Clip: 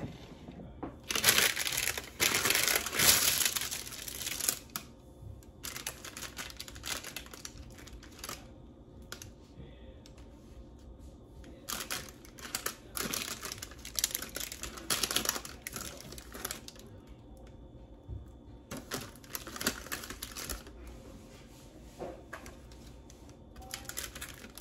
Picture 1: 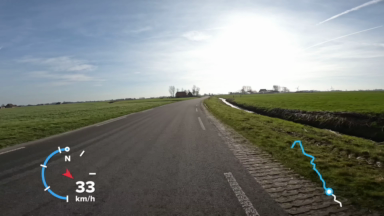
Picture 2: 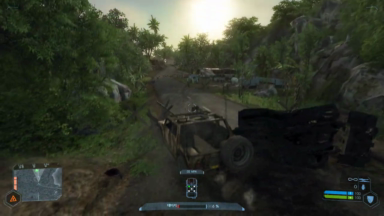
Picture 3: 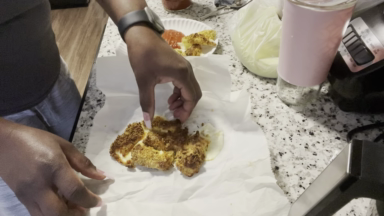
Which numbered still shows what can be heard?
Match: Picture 3